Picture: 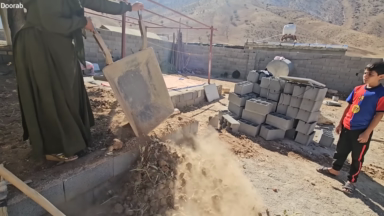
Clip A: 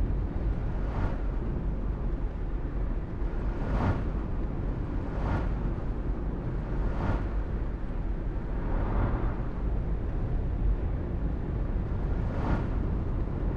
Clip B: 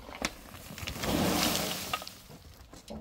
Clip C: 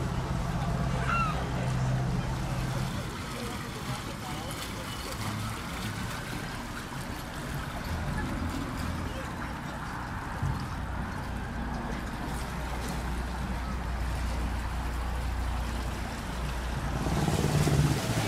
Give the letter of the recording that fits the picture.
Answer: B